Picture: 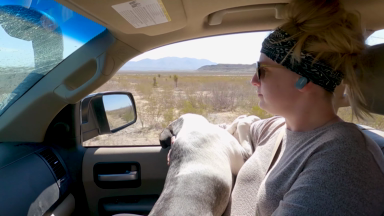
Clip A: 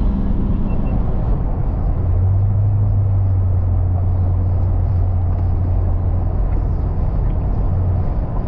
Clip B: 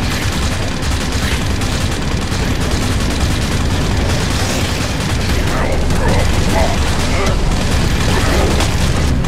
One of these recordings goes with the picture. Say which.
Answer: A